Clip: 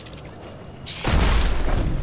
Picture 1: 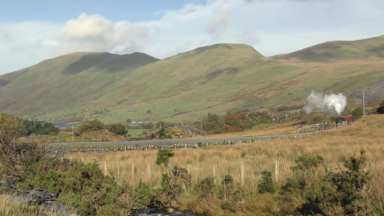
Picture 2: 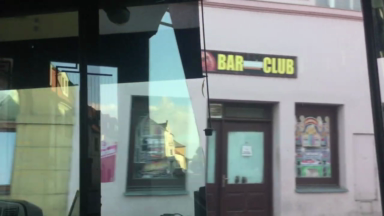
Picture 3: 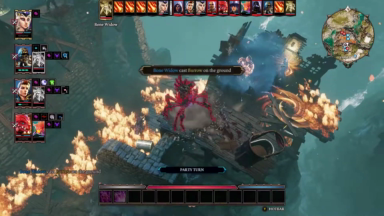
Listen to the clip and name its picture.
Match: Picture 3